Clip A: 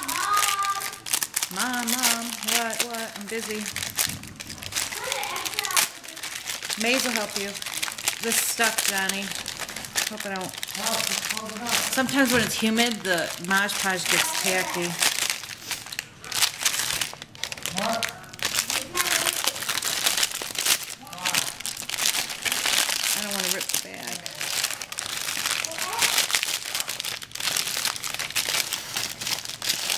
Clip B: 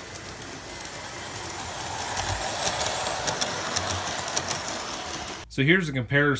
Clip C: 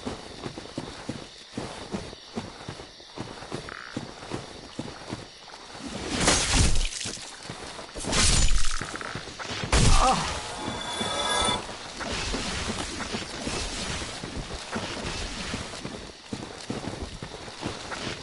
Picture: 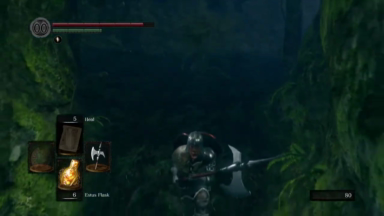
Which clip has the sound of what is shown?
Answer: C